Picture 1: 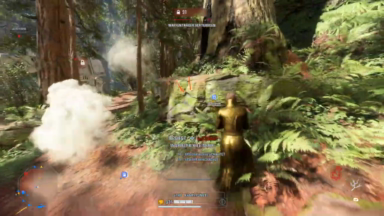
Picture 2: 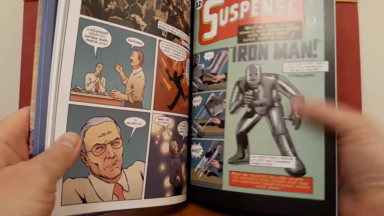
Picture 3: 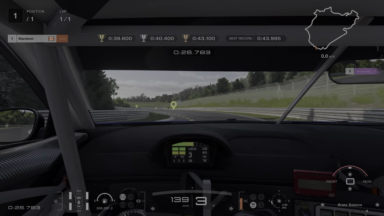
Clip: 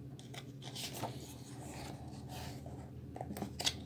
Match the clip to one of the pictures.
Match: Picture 2